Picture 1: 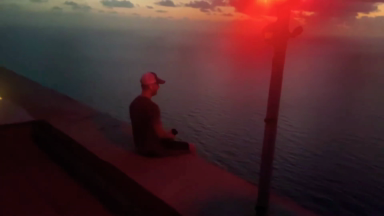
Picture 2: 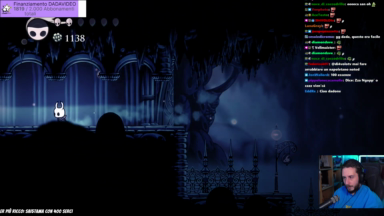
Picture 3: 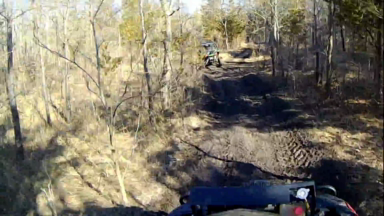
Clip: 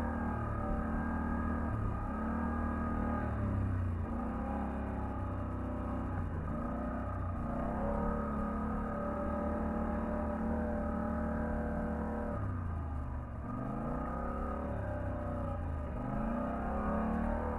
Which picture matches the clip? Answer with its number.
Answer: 3